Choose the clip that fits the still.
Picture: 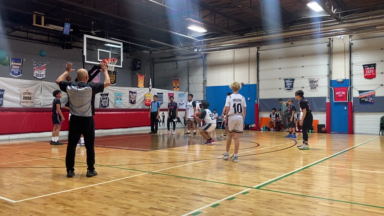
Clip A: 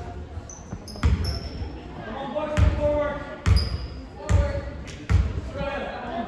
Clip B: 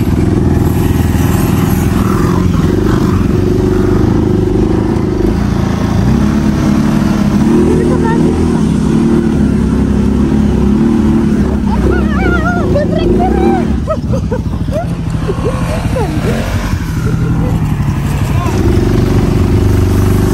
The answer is A